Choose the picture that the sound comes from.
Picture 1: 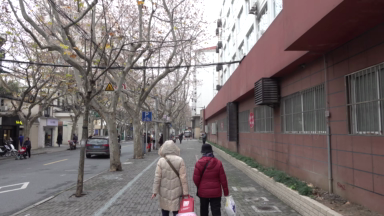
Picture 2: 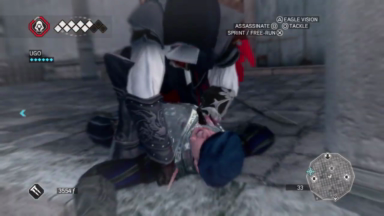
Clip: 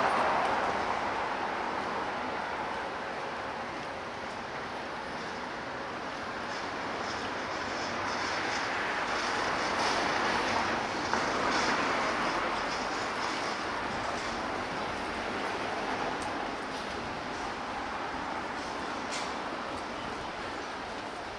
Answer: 1